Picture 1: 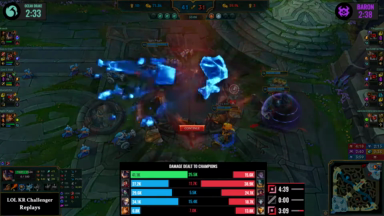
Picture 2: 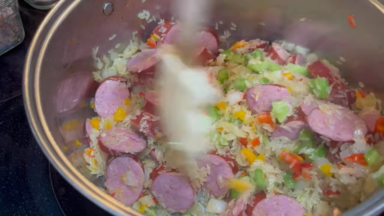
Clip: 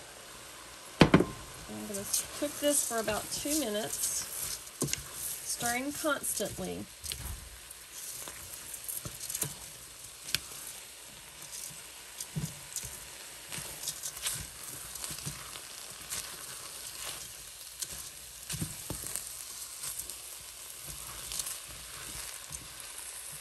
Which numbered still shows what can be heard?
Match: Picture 2